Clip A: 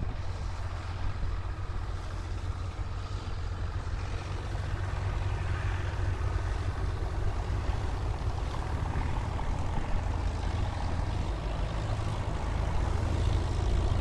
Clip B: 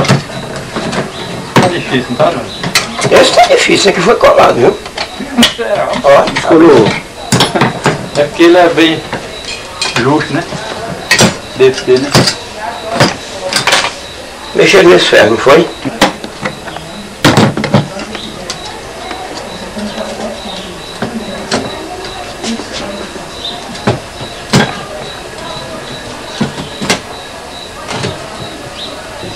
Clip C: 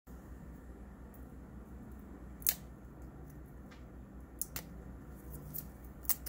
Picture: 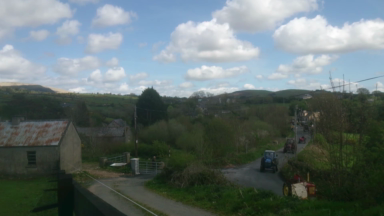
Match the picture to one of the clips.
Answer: A